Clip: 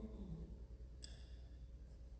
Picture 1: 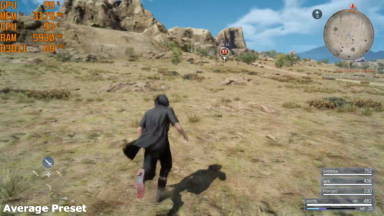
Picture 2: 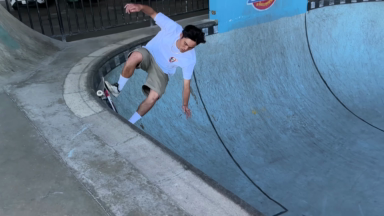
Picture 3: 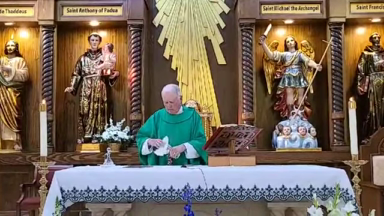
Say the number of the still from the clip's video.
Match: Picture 3